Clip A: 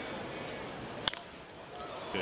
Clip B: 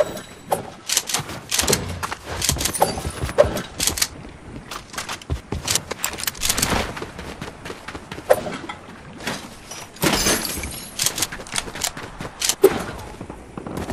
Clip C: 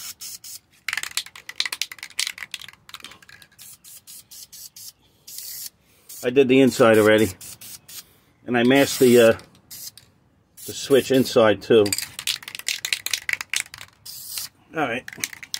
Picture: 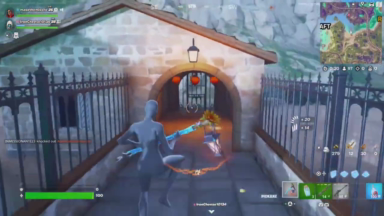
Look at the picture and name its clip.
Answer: B